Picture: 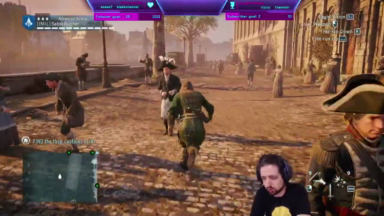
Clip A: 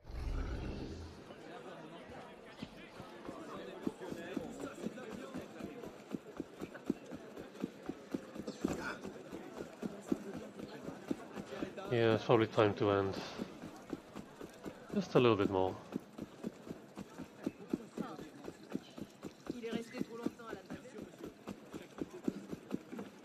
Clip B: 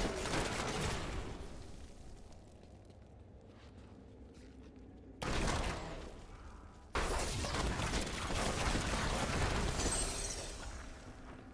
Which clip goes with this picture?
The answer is A